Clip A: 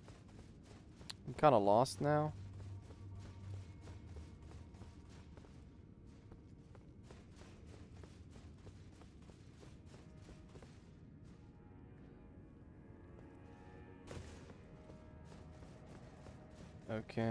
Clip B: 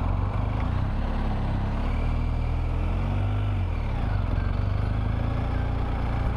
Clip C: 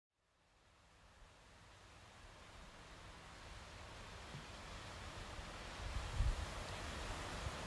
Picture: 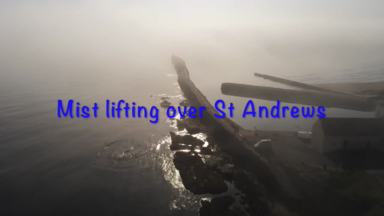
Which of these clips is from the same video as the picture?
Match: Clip C